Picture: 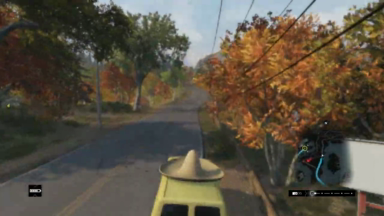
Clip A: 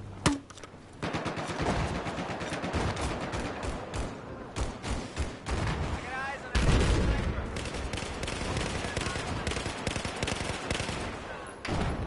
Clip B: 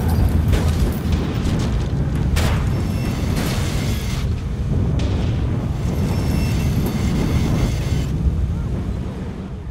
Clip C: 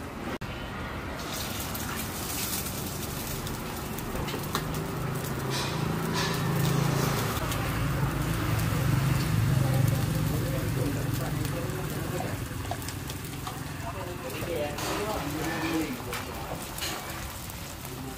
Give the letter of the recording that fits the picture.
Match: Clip B